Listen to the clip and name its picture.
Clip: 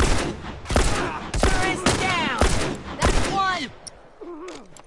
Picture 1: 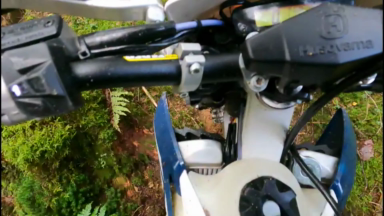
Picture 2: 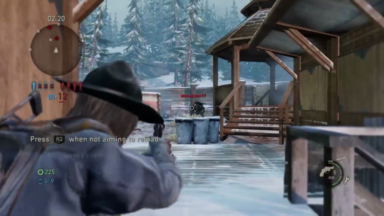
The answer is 2